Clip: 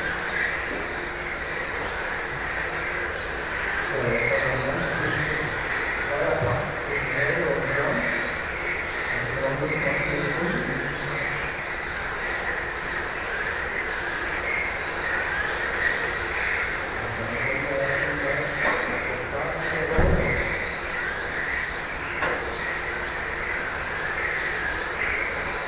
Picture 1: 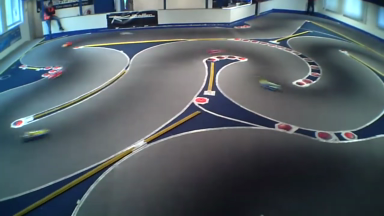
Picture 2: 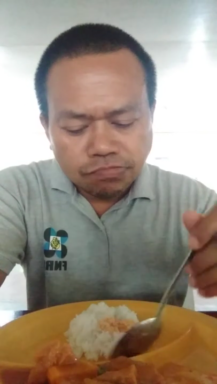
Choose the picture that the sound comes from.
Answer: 1